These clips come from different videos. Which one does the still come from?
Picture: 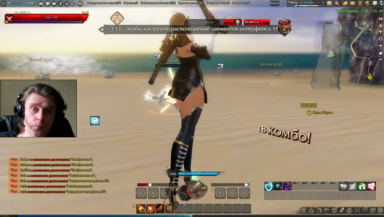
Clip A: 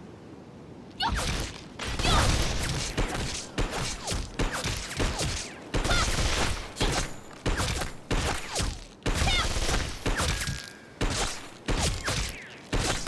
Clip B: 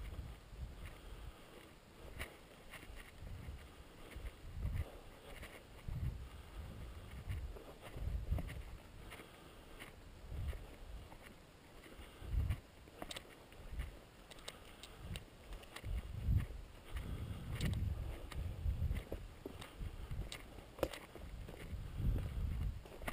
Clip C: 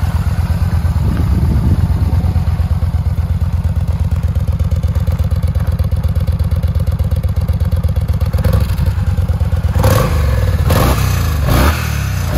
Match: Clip A